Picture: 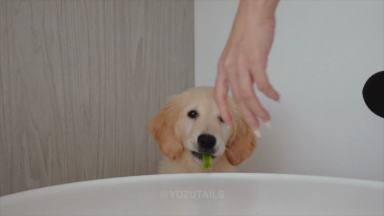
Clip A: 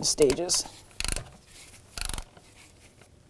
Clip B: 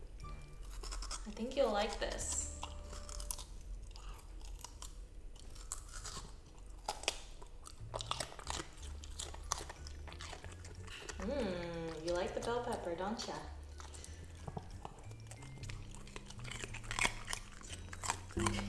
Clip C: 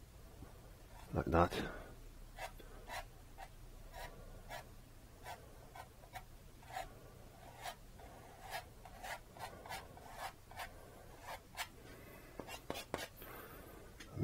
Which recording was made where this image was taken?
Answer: B